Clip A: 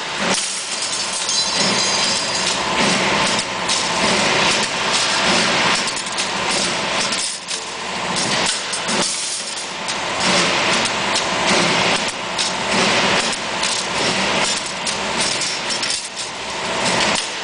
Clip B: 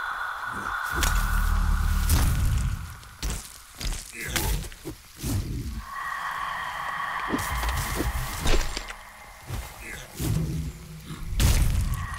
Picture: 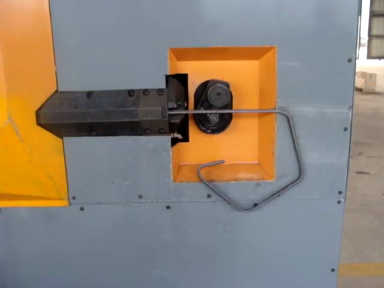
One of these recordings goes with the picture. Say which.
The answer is A